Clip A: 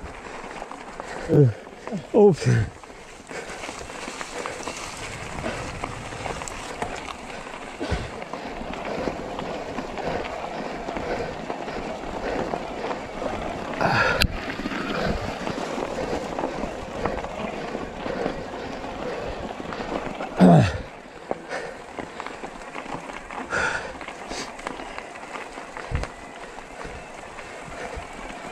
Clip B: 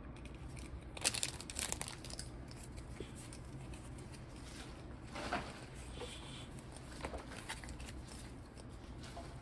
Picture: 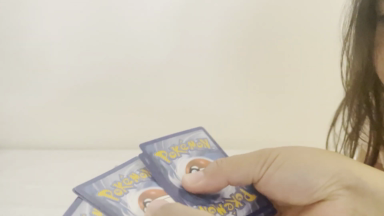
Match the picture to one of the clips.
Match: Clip B